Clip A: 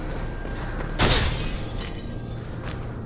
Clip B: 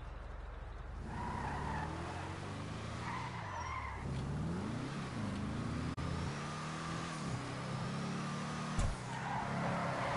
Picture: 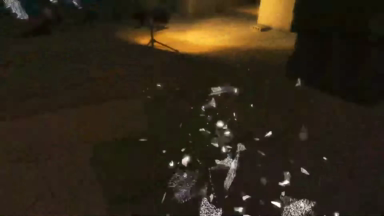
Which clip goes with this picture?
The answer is A